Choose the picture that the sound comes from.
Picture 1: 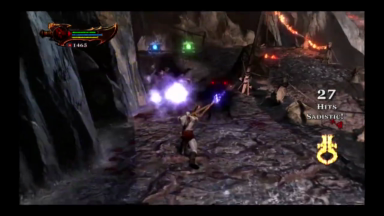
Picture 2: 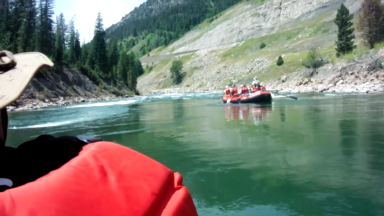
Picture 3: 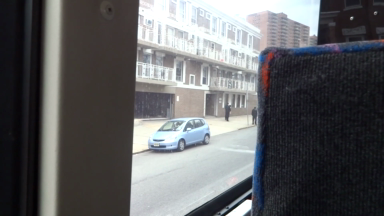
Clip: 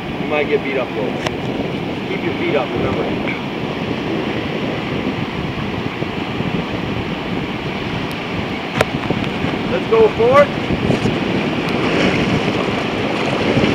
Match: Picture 2